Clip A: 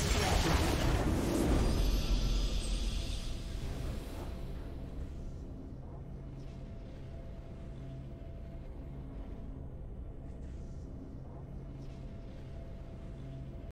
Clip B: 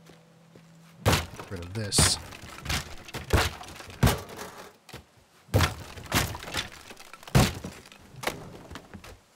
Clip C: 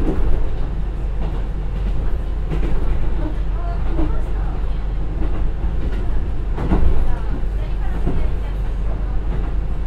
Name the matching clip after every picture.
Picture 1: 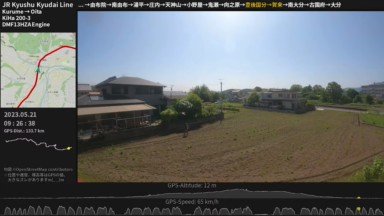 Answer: C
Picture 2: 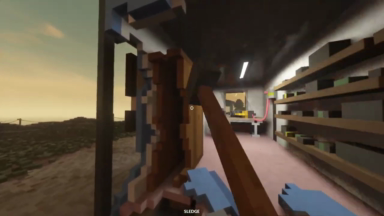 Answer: B